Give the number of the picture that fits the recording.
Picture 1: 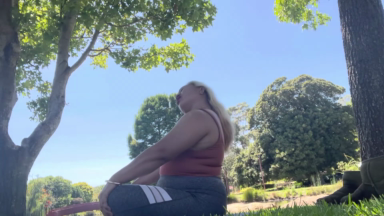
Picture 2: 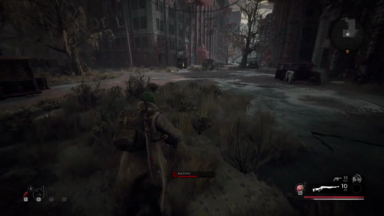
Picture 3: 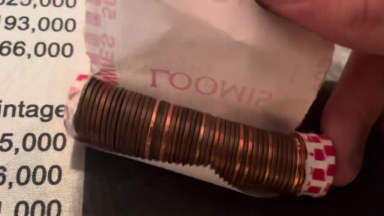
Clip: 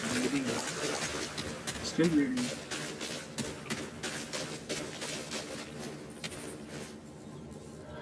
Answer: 2